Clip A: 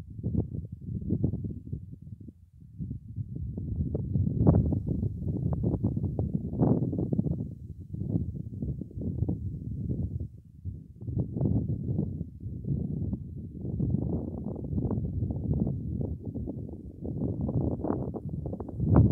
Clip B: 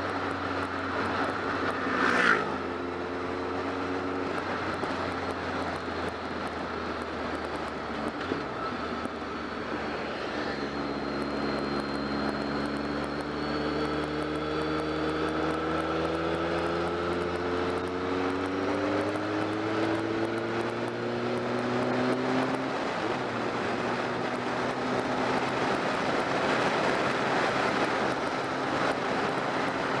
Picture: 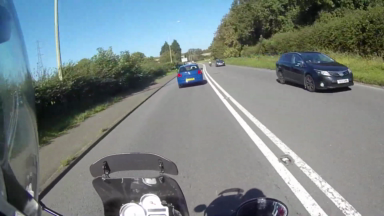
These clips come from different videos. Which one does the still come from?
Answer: B